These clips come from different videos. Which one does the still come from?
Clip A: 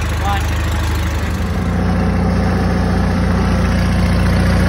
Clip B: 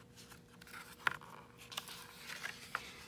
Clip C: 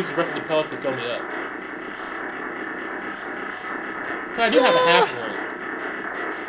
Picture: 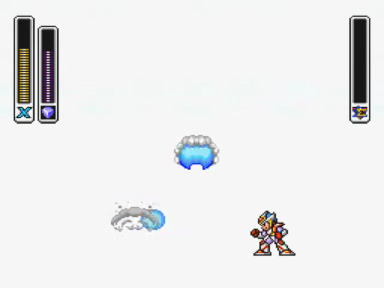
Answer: C